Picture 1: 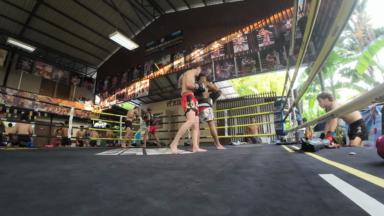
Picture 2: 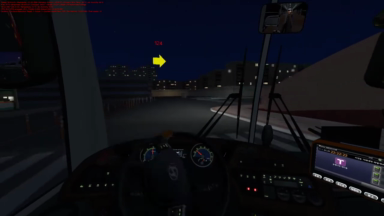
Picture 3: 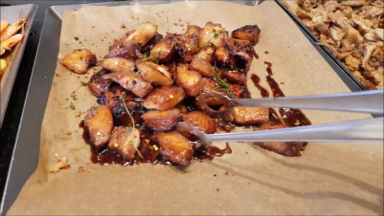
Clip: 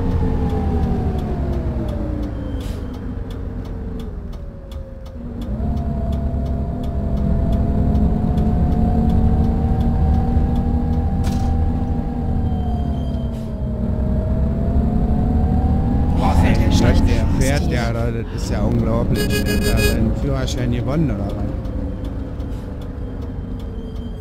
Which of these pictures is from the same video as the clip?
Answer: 2